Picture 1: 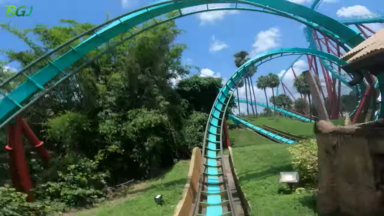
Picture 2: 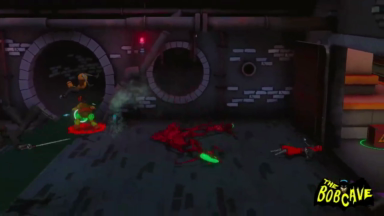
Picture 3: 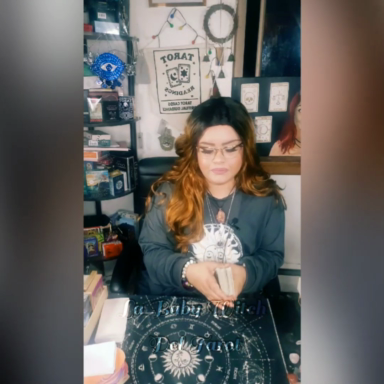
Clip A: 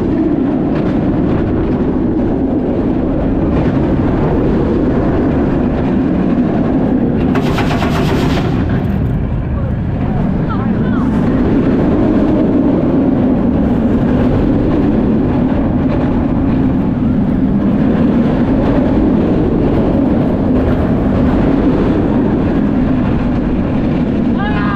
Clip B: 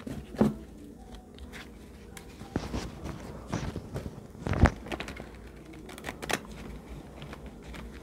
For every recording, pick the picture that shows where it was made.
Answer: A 1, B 3